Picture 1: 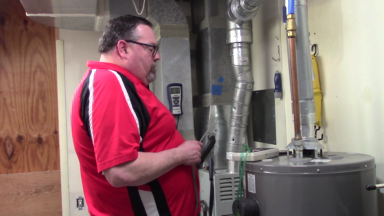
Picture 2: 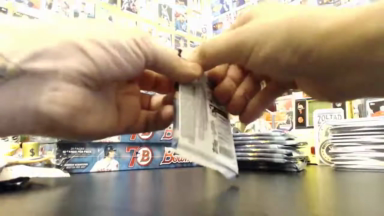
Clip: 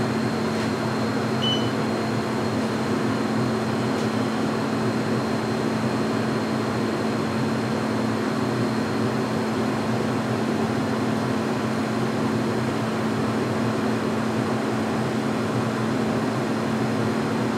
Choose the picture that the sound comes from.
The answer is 1